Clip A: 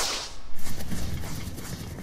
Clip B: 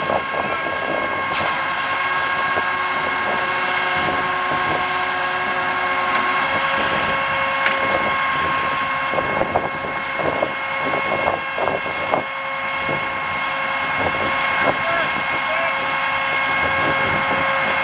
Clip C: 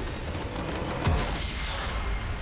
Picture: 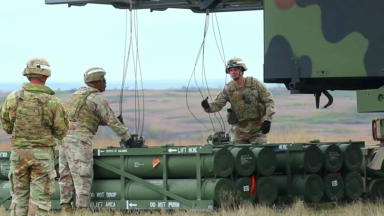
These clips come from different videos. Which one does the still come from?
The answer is B